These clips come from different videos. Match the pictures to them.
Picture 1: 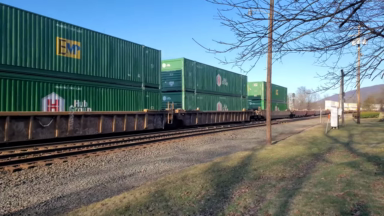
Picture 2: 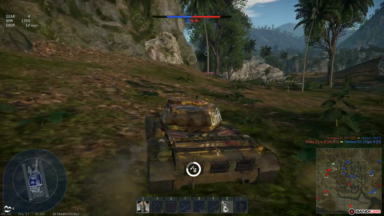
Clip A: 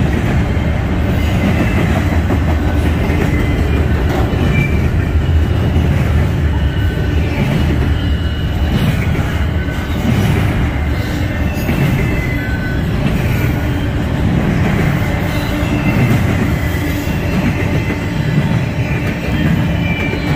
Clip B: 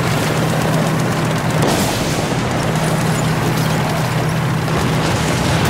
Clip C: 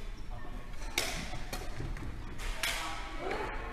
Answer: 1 A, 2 B